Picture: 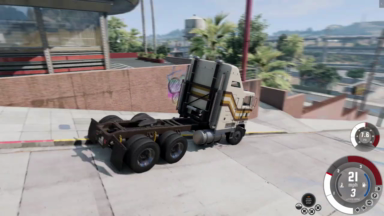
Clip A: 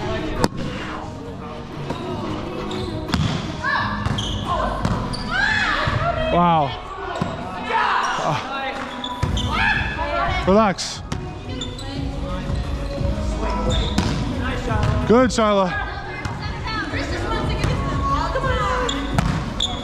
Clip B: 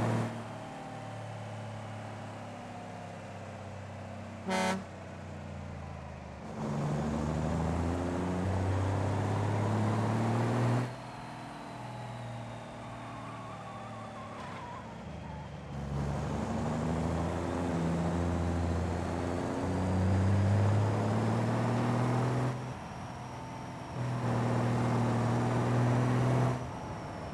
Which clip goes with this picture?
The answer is B